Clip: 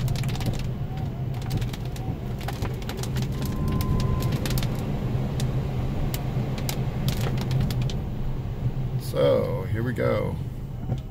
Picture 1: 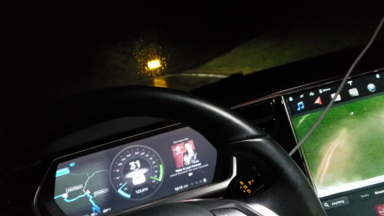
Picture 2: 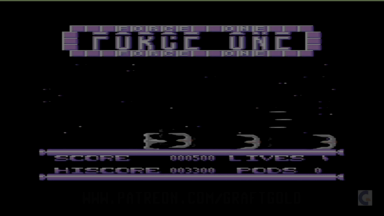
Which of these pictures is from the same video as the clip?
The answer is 1